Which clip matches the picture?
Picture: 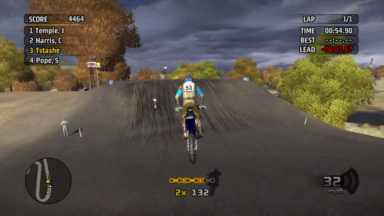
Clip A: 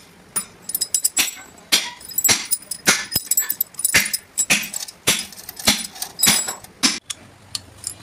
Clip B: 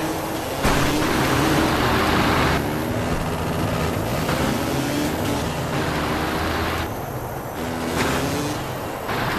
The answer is B